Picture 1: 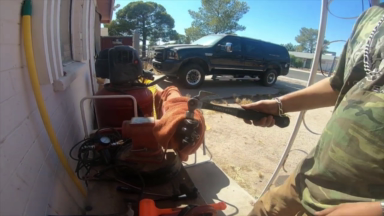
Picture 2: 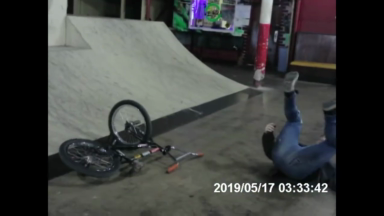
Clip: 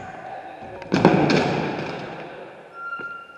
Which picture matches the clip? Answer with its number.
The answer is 2